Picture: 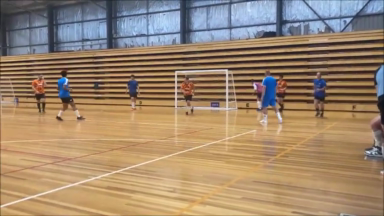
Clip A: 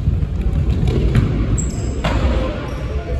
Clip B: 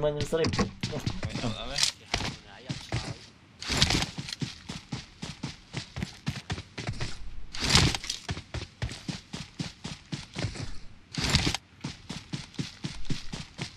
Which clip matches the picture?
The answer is A